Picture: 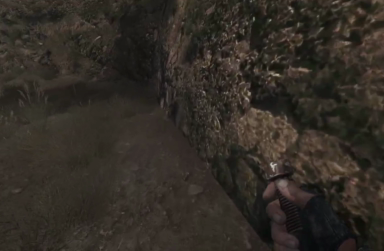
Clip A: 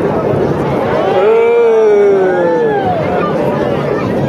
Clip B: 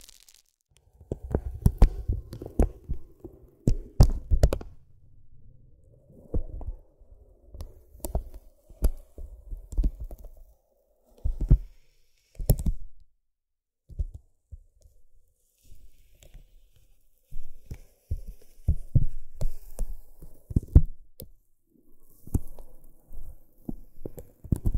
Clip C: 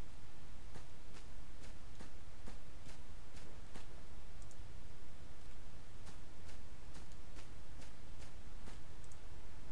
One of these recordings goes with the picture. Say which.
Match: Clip C